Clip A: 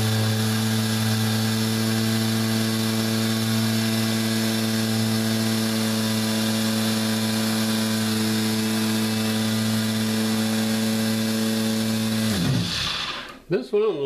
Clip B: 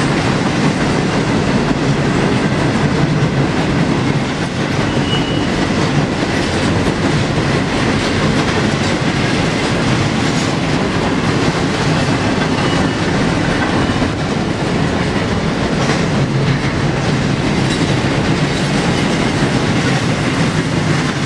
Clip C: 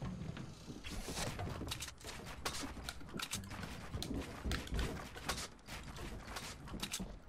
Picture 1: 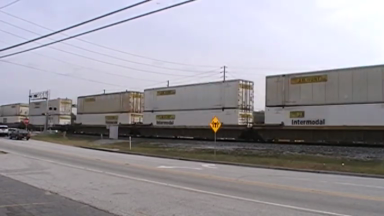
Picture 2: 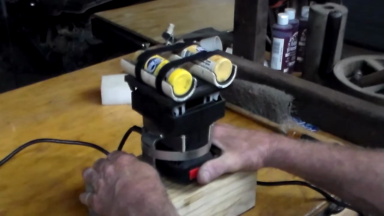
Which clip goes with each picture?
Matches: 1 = B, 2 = A